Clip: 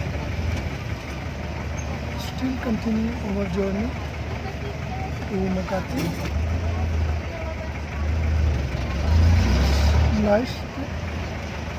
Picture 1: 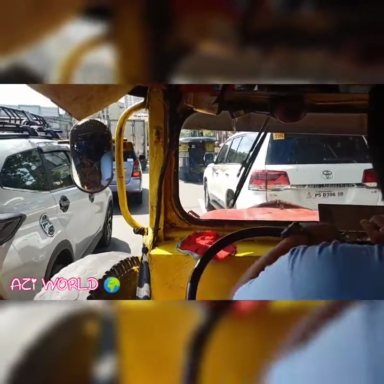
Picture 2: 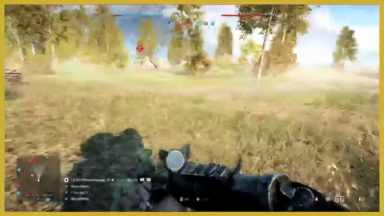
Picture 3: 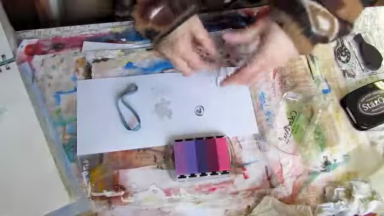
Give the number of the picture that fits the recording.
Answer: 1